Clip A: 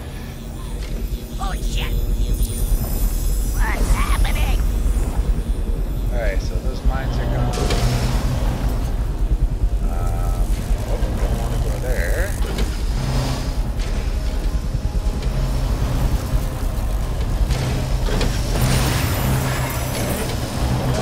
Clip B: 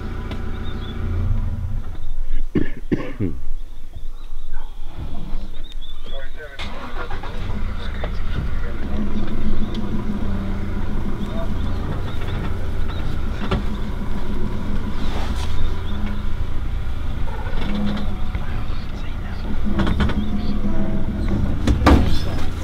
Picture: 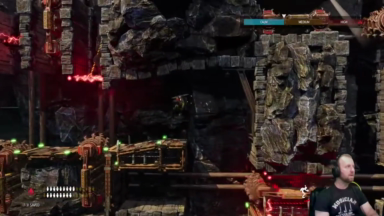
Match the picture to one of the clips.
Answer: A